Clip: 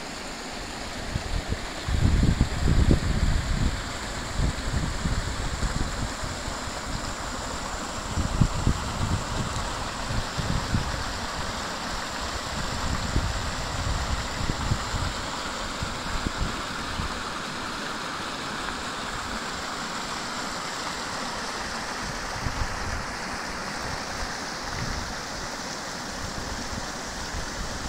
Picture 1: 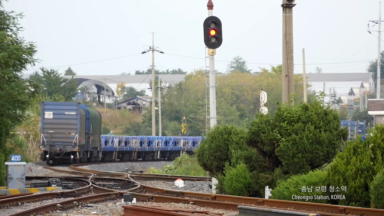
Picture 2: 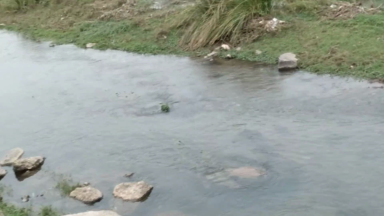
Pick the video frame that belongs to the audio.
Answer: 2